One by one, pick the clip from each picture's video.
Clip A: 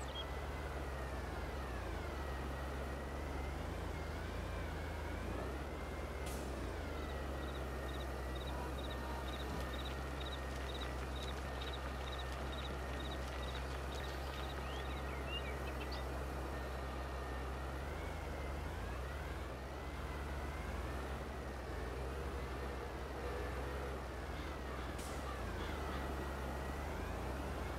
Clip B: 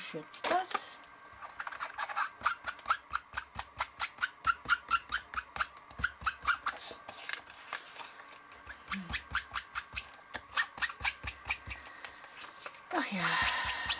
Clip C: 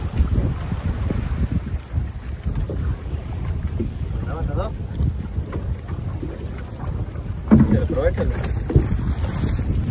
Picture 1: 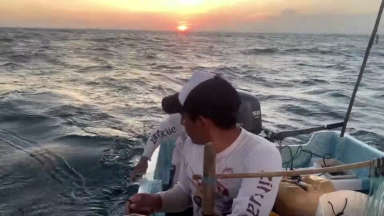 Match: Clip C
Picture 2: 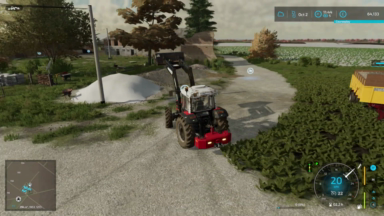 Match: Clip A